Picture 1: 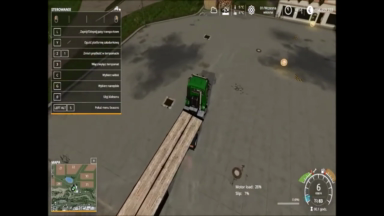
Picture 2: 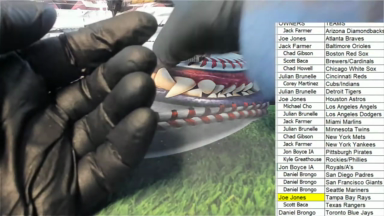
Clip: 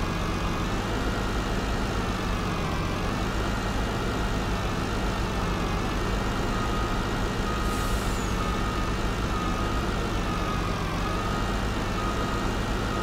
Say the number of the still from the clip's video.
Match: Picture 1